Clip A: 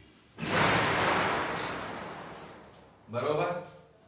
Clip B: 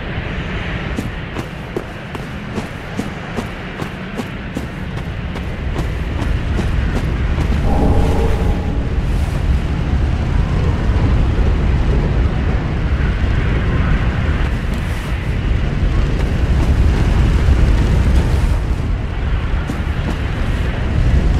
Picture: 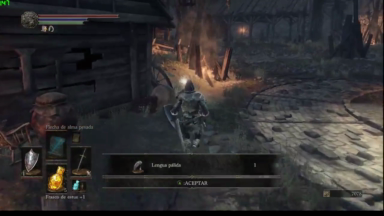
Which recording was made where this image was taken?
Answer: B